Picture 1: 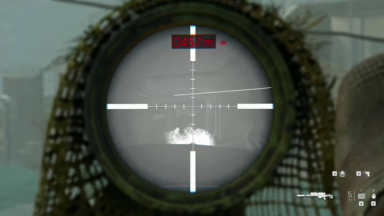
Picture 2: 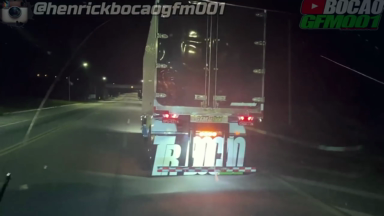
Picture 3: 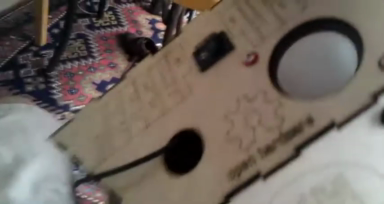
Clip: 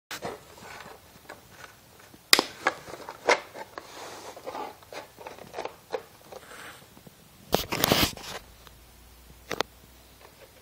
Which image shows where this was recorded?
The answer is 3